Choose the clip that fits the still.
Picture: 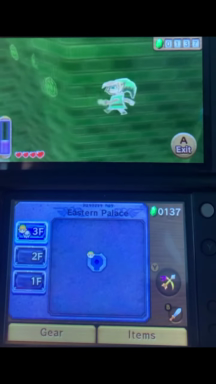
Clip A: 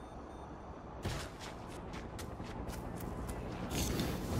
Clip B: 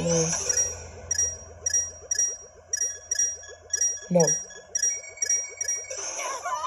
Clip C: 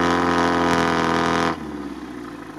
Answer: B